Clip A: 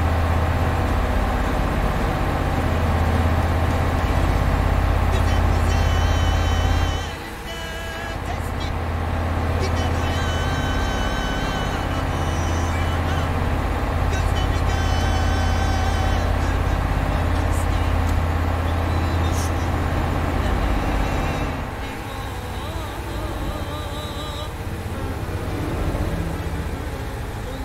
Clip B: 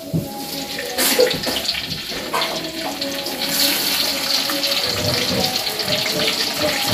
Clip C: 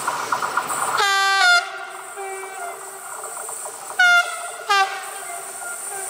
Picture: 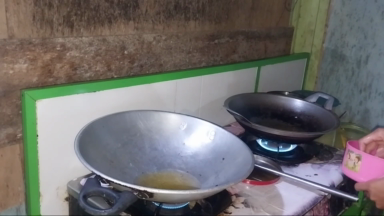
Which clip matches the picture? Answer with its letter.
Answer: B